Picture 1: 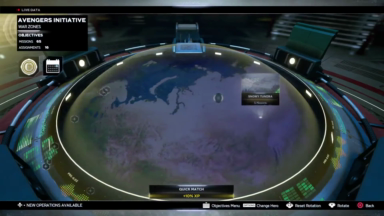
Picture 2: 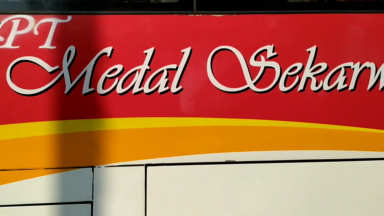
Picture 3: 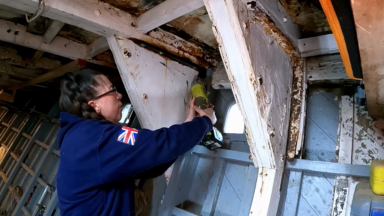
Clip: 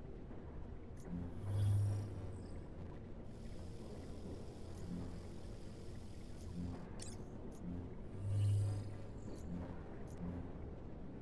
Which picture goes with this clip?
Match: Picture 1